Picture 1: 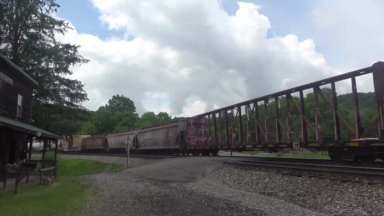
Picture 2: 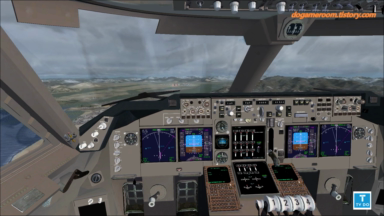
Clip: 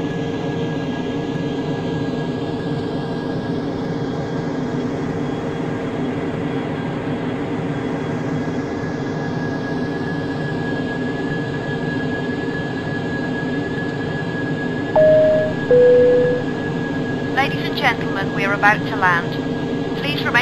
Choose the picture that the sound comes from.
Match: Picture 2